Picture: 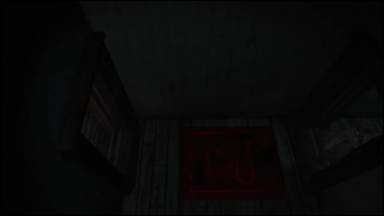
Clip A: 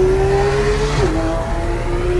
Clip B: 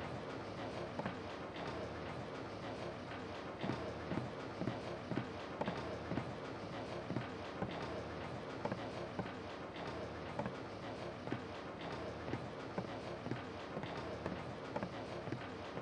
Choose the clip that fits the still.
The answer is B